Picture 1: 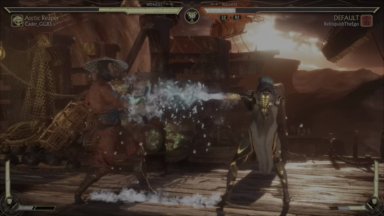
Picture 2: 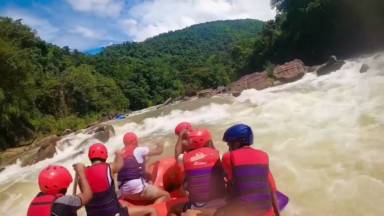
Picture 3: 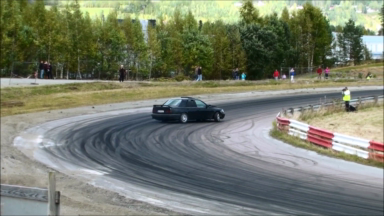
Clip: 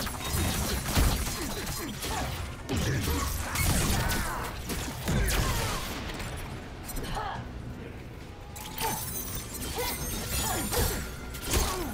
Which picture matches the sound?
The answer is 1